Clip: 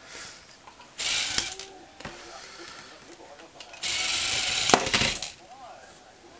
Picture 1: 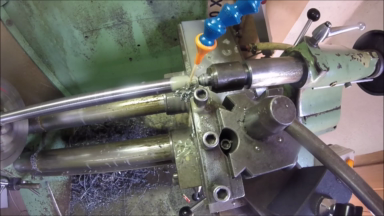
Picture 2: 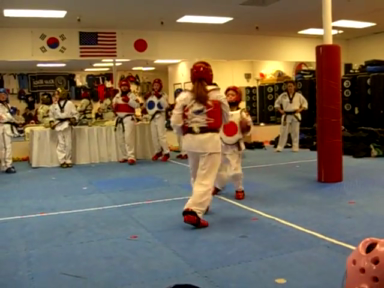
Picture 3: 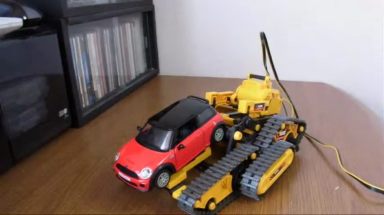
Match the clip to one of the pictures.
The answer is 3